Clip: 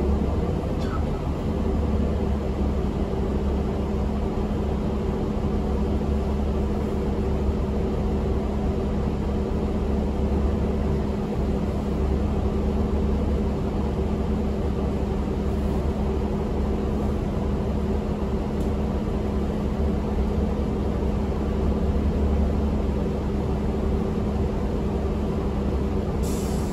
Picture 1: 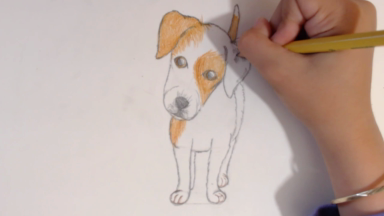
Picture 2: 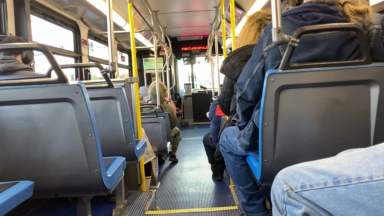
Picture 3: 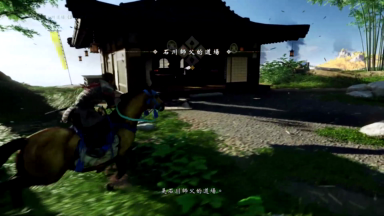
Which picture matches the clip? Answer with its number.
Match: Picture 2